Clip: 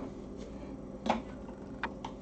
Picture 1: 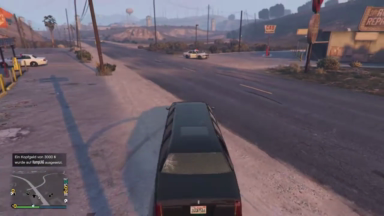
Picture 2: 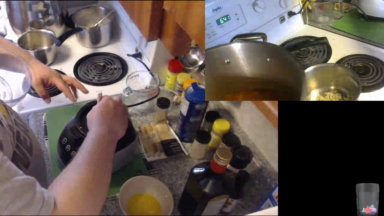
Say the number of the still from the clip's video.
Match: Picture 2